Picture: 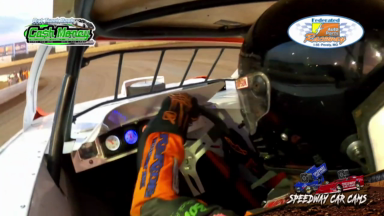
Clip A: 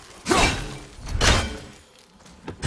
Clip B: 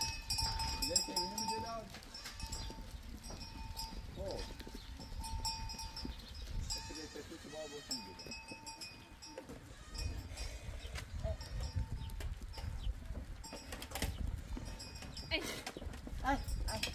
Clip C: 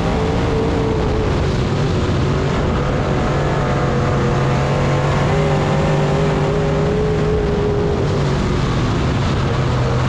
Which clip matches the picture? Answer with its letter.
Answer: C